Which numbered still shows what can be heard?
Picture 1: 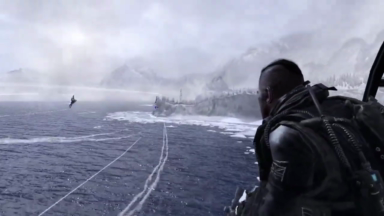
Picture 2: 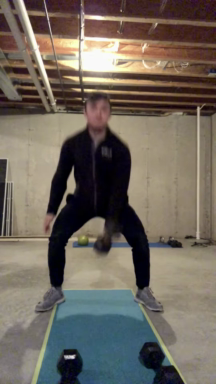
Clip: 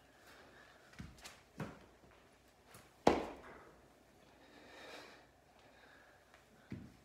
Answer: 2